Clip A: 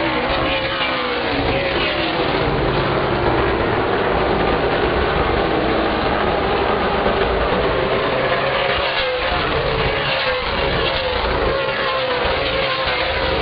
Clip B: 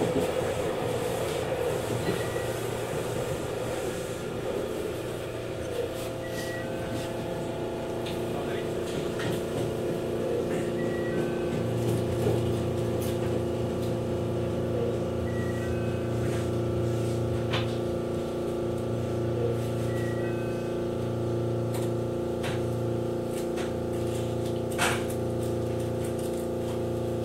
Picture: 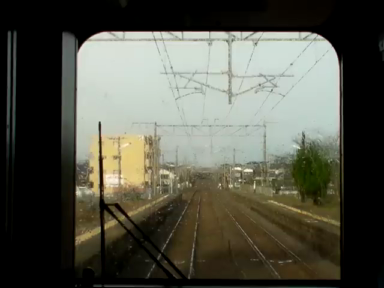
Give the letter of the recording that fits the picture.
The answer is B